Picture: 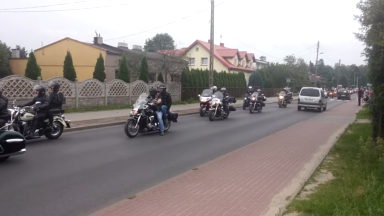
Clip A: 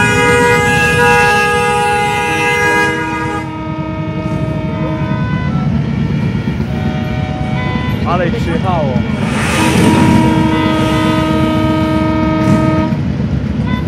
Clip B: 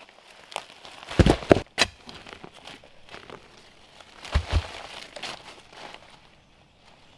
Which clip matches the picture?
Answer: A